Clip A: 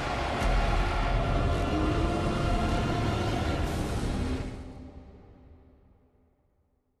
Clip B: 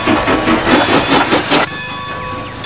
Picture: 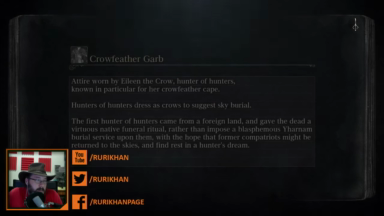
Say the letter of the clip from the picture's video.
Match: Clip A